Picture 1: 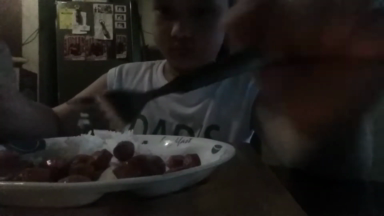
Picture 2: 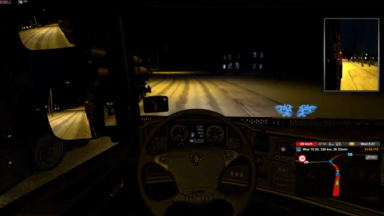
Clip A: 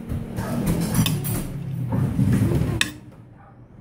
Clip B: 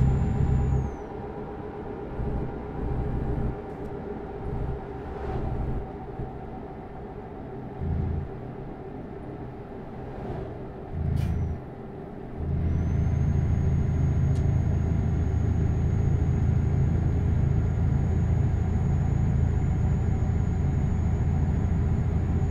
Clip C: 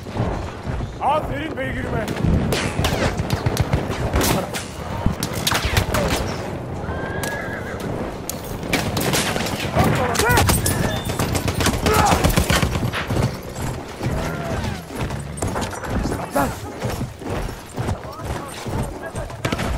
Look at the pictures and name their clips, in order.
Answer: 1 A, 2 B